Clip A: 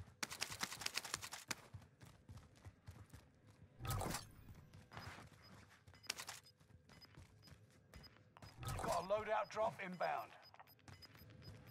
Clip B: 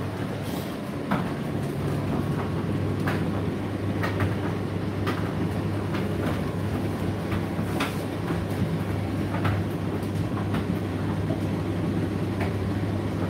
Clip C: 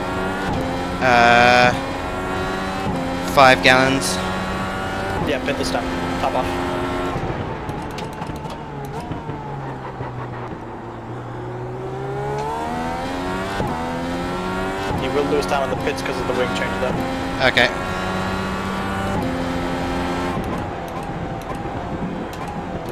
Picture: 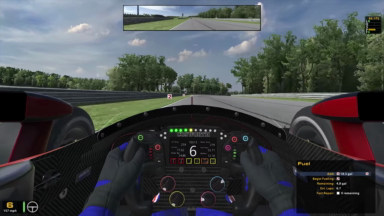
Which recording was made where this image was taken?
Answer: C